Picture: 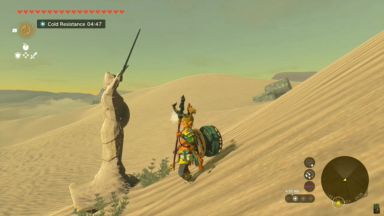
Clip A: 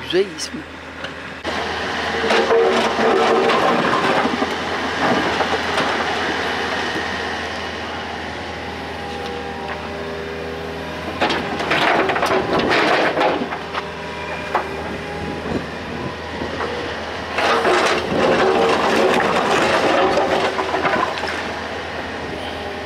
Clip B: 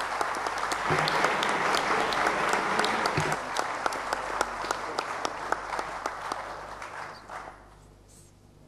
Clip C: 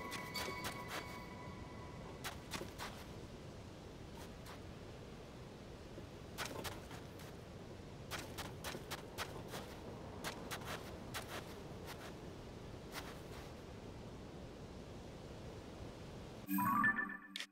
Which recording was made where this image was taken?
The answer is C